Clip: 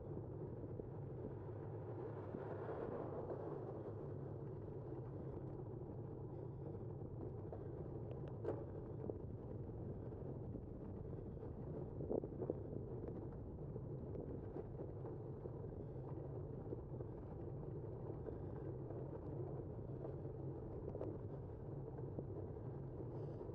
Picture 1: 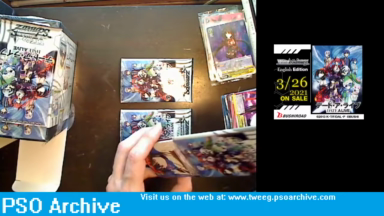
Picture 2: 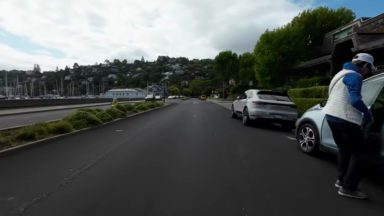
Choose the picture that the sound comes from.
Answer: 2